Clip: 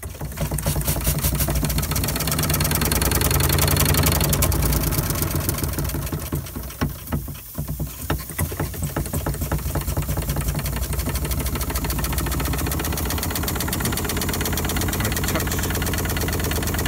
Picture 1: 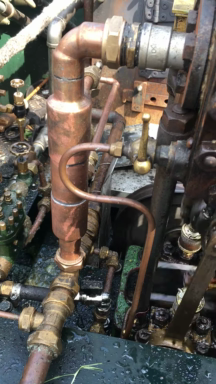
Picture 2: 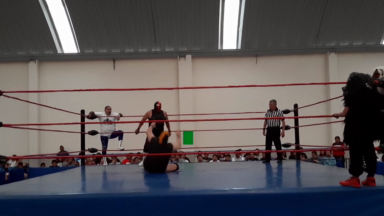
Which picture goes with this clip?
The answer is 1